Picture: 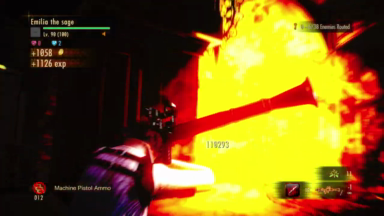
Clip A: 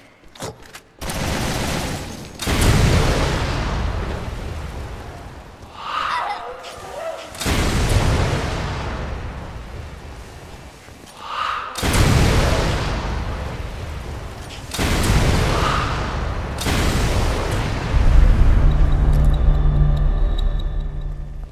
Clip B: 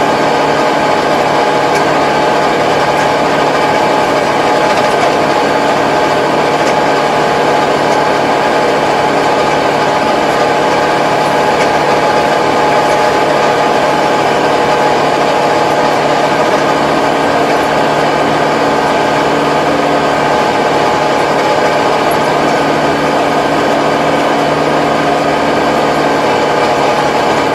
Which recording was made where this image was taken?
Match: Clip A